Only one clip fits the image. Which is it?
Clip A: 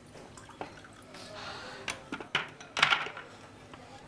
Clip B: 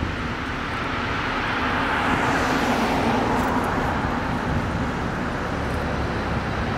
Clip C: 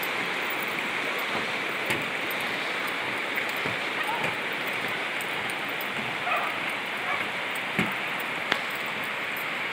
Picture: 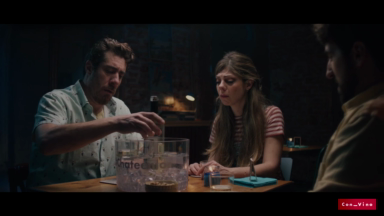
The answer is A